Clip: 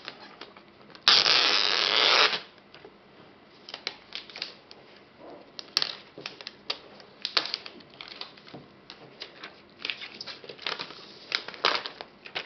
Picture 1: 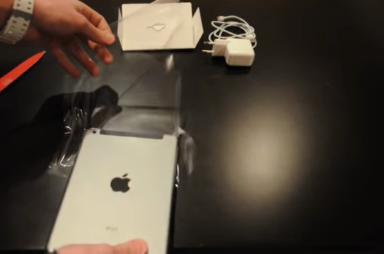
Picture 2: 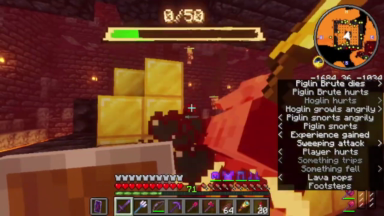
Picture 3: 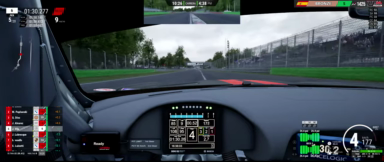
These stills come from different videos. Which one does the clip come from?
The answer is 1